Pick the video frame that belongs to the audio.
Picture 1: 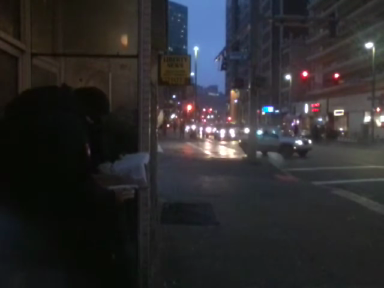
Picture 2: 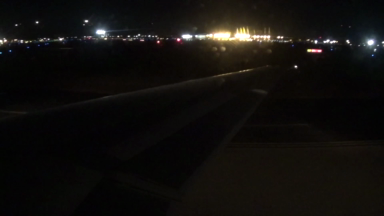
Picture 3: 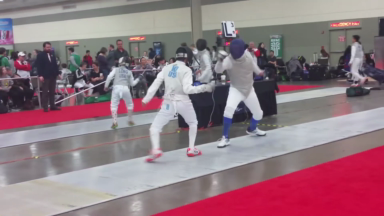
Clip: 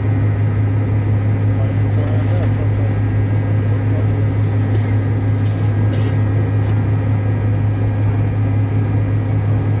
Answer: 2